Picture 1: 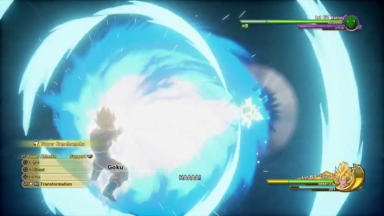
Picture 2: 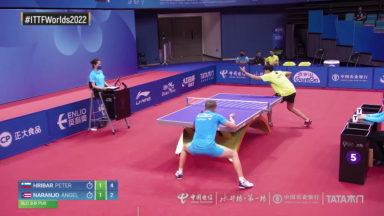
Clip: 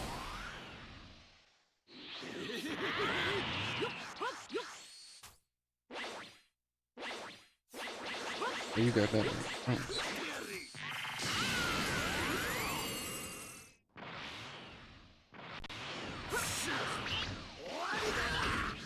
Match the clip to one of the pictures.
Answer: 1